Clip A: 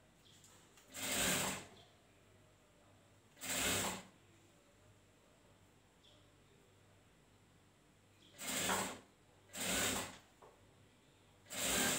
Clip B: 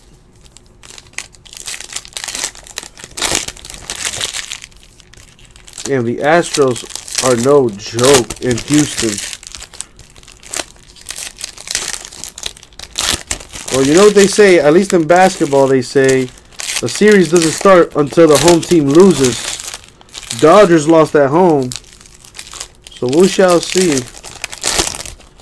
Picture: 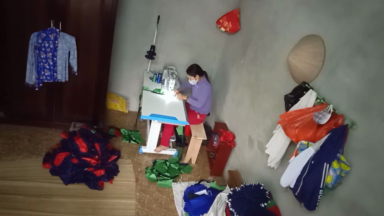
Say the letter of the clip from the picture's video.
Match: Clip A